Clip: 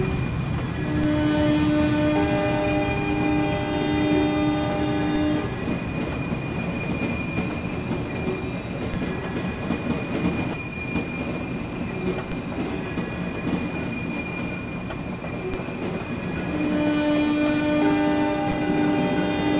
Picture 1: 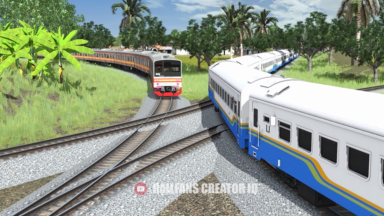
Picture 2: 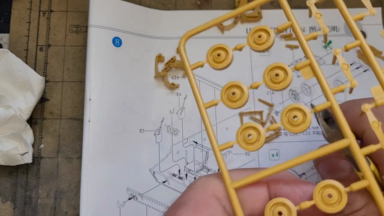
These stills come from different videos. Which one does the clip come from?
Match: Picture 1